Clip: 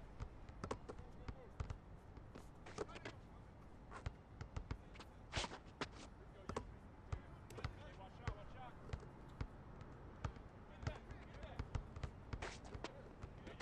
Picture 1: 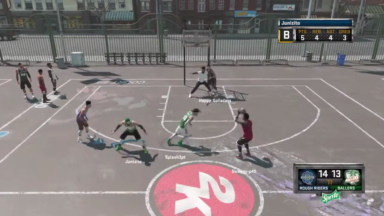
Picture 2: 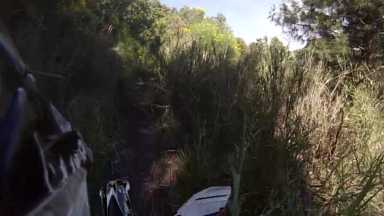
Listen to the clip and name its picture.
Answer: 1